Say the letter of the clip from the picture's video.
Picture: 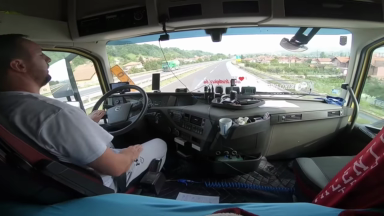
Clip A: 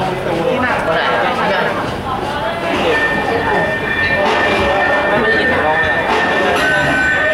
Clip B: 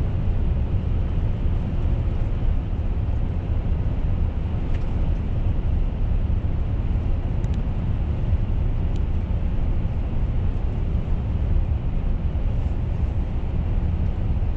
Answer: B